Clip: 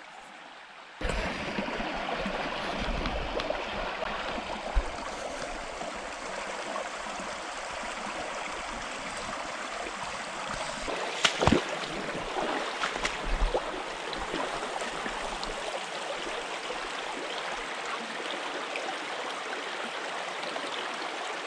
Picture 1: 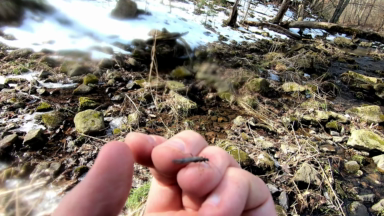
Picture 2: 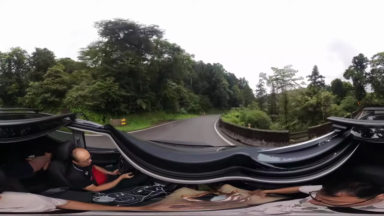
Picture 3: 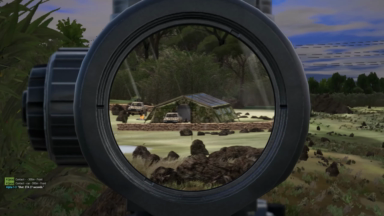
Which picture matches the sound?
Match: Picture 1